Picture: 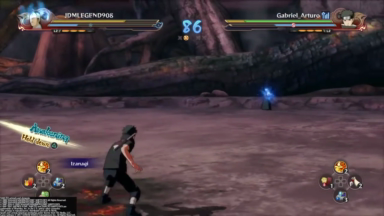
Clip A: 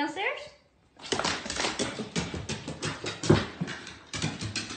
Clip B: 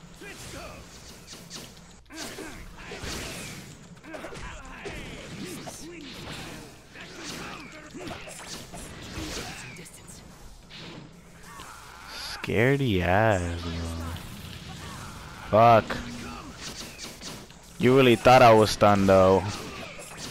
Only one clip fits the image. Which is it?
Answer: B